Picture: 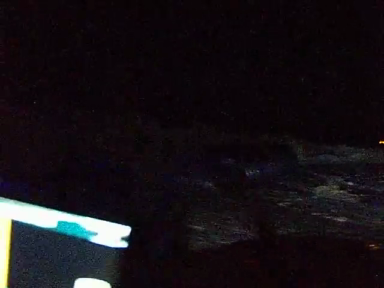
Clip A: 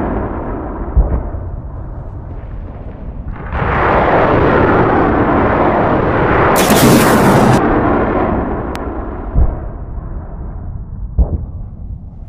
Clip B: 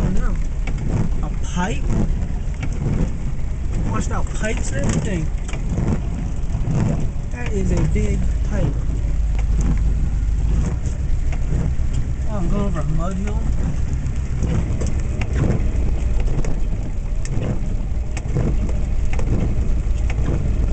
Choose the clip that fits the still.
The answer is B